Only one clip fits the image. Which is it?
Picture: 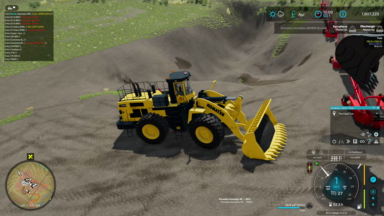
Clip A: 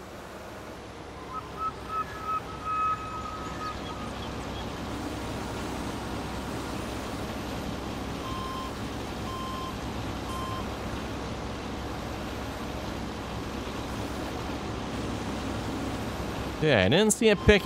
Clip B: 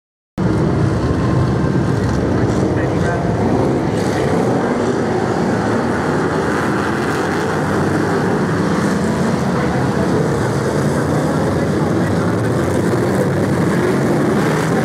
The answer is A